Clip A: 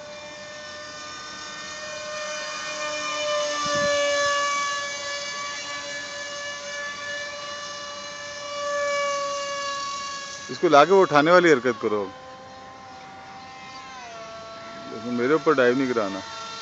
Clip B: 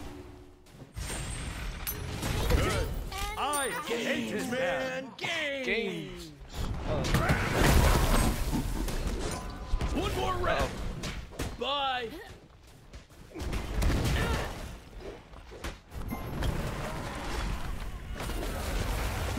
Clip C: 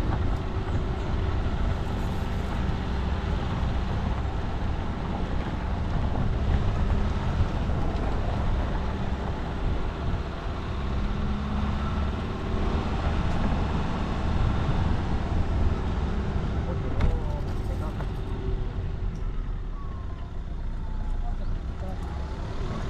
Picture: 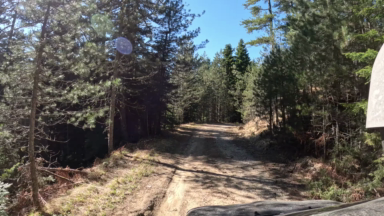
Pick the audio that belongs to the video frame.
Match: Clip C